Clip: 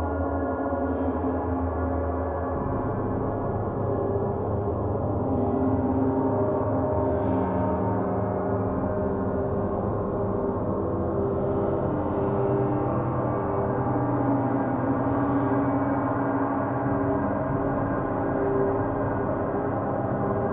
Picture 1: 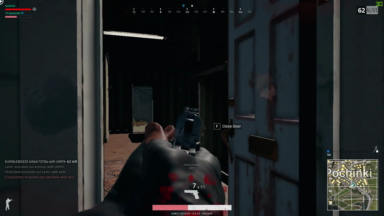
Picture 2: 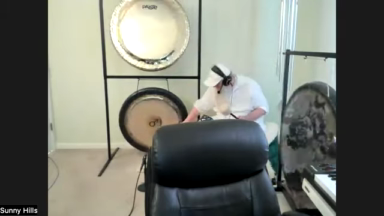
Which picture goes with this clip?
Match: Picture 2